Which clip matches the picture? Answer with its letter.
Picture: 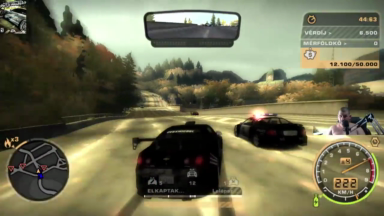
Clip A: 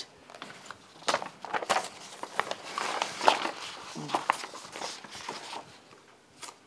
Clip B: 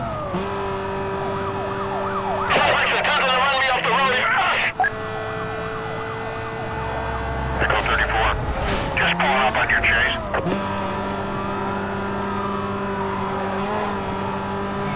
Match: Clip B